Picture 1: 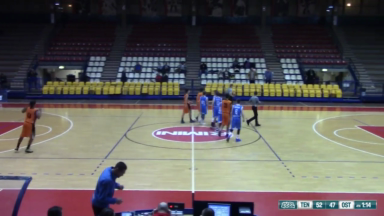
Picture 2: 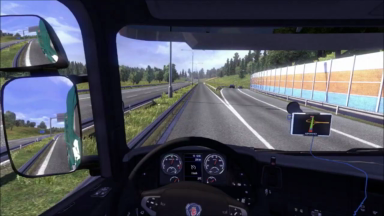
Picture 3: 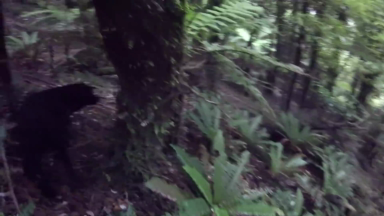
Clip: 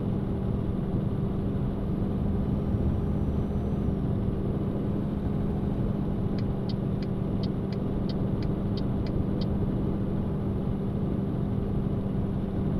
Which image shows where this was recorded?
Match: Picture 2